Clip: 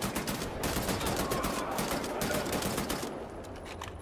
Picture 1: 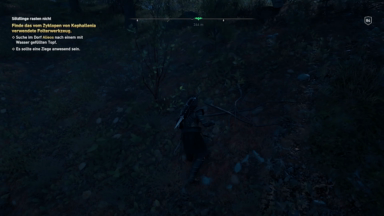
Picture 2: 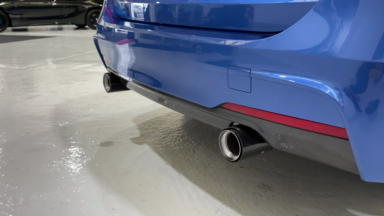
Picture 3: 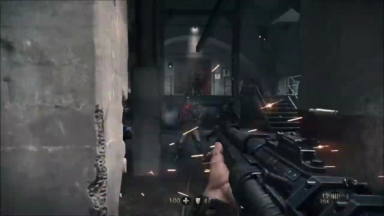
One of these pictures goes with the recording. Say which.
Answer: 3